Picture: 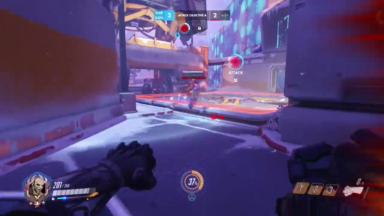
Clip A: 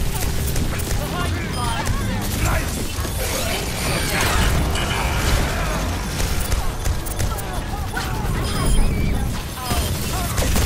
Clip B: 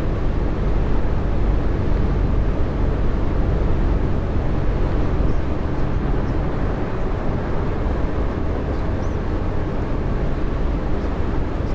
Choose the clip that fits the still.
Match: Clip A